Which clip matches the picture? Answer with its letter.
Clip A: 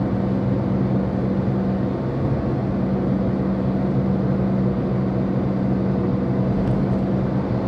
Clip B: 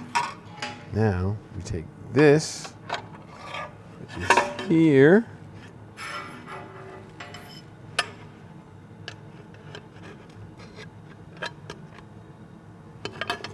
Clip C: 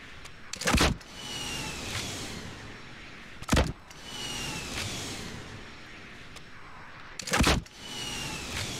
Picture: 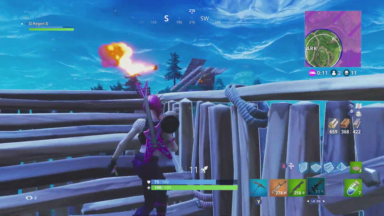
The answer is C